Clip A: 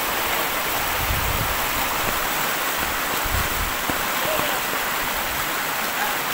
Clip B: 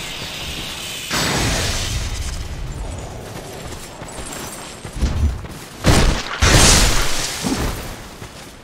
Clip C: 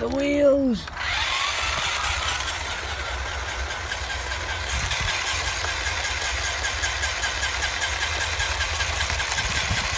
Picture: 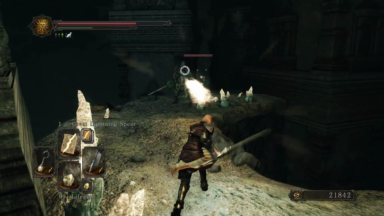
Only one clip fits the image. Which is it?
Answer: B